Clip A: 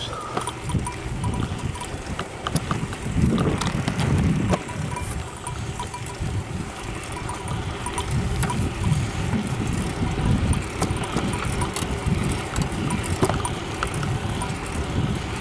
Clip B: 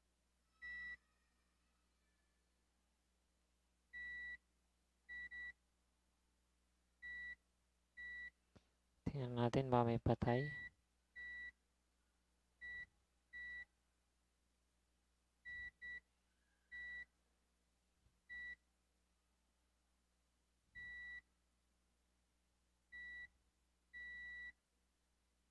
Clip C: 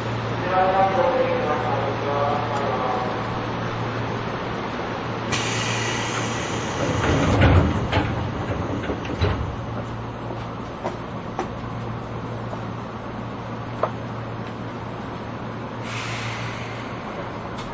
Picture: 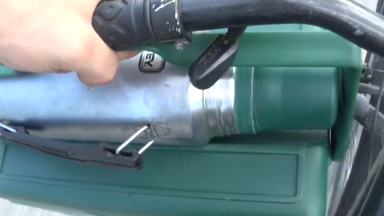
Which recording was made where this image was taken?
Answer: A